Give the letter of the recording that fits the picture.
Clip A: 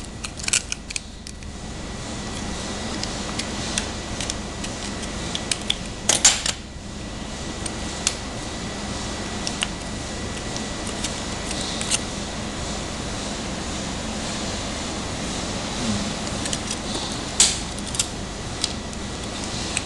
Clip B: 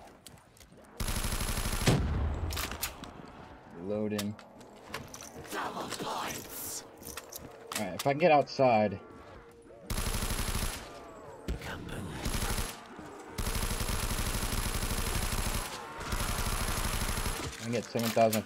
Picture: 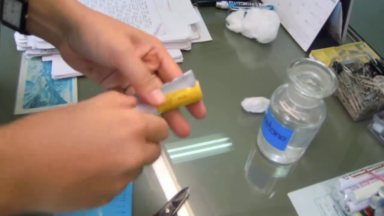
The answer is A